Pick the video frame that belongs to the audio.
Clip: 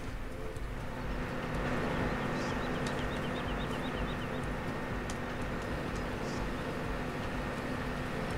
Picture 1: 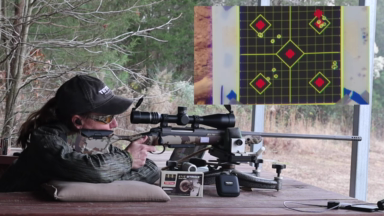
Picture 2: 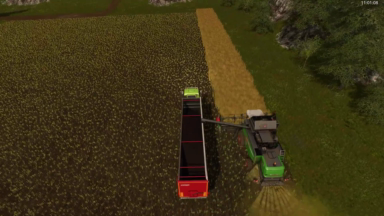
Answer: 2